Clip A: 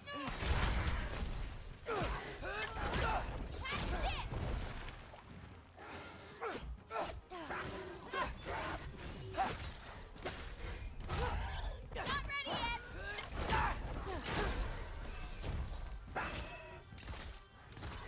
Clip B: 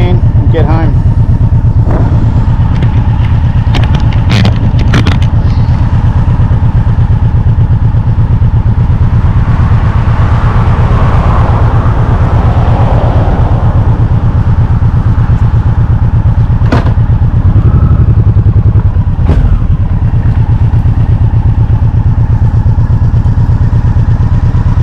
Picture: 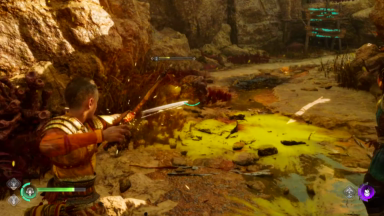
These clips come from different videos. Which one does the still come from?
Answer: A